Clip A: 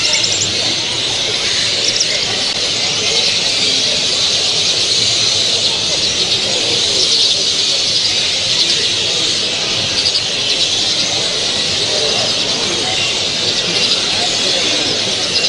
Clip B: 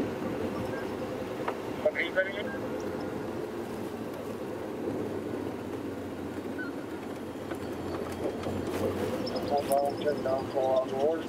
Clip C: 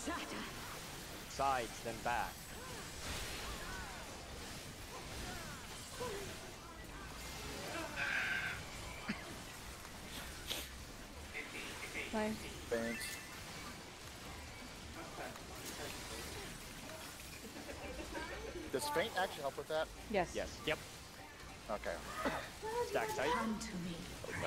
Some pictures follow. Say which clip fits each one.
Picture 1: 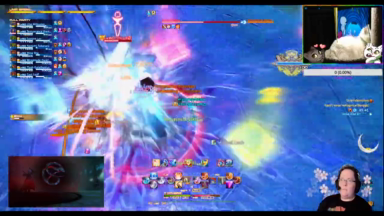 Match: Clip C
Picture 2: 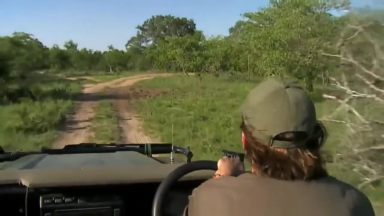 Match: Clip B